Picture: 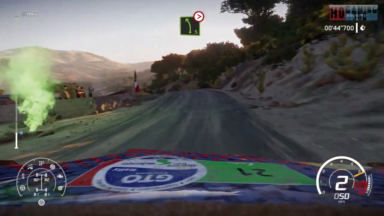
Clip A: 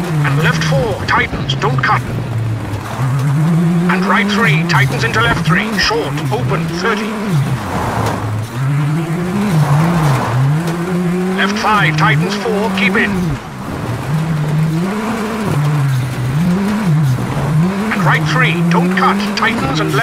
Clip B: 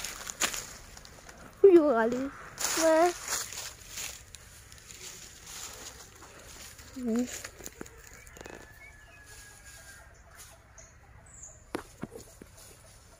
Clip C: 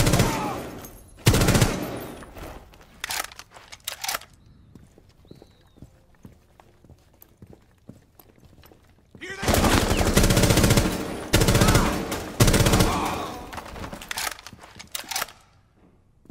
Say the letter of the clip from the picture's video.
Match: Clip A